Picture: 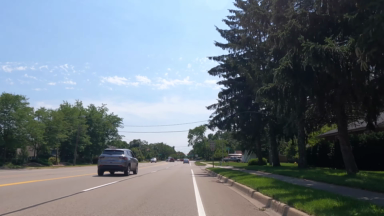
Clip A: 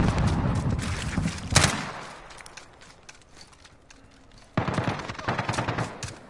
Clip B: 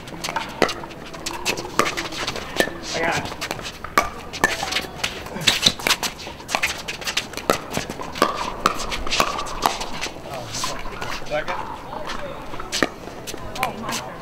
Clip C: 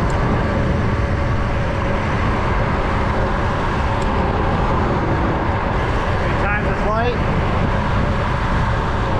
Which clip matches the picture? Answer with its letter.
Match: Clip C